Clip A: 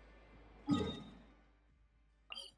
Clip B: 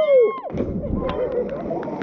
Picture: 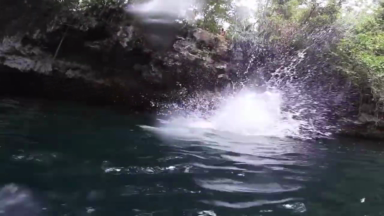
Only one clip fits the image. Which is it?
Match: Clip B